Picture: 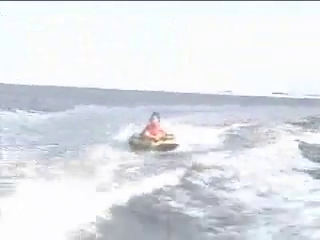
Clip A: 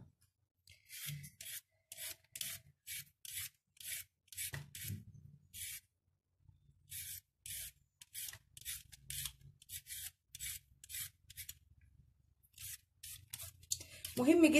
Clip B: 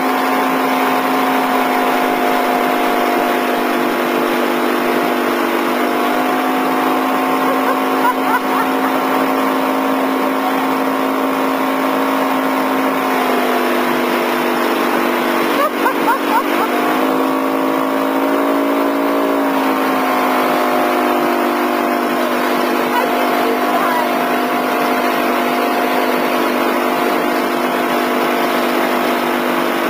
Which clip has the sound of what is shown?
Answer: B